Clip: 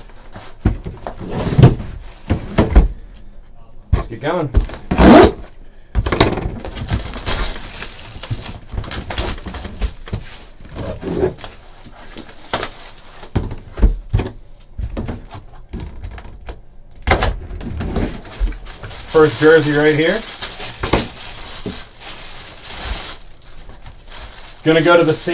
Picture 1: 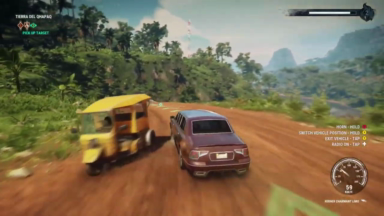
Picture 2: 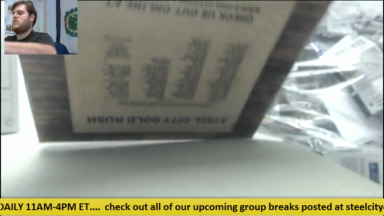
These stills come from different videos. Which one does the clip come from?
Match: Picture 2